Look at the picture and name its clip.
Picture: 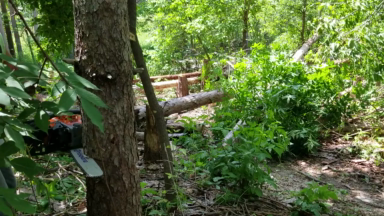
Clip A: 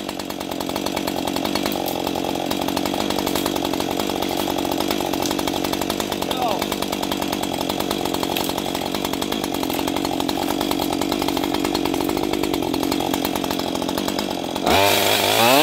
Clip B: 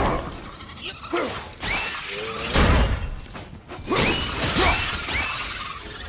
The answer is A